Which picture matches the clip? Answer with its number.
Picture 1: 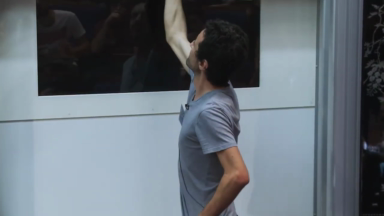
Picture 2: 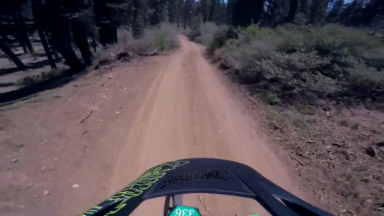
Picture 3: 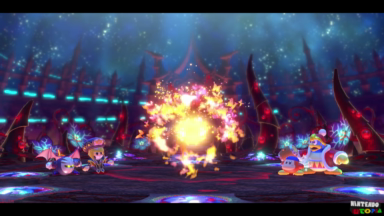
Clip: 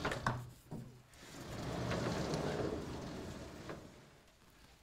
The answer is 1